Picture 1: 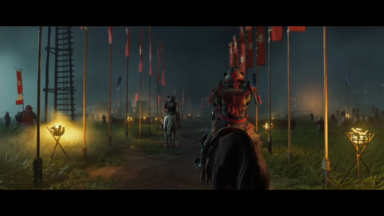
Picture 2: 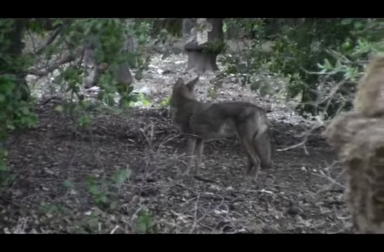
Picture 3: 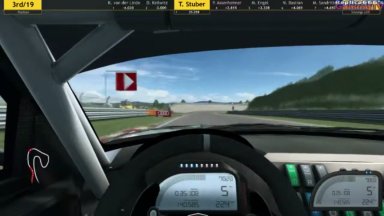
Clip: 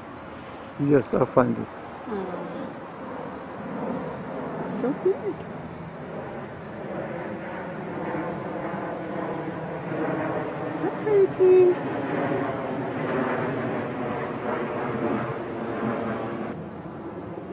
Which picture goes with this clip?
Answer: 2